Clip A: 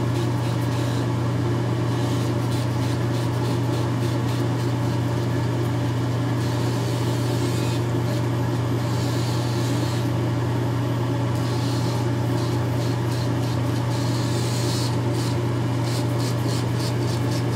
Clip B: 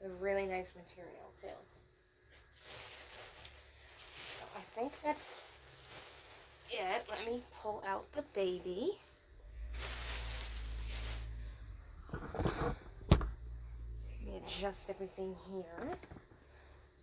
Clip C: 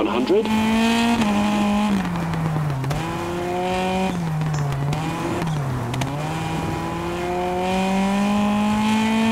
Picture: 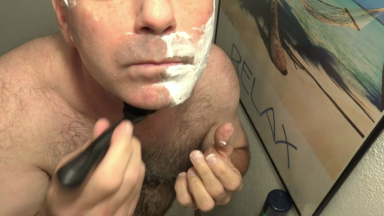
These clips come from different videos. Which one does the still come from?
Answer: A